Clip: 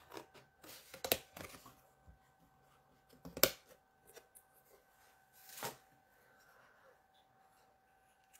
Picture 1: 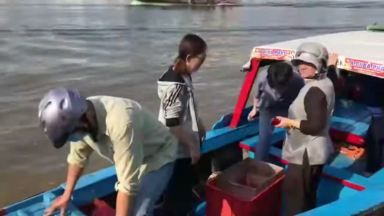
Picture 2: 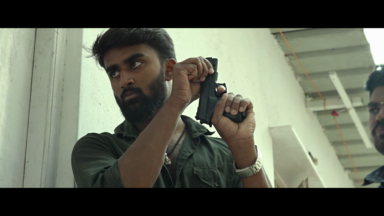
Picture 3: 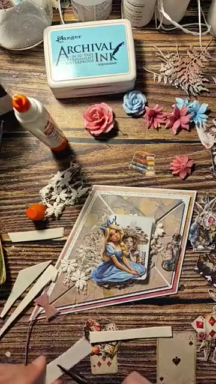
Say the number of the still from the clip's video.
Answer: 3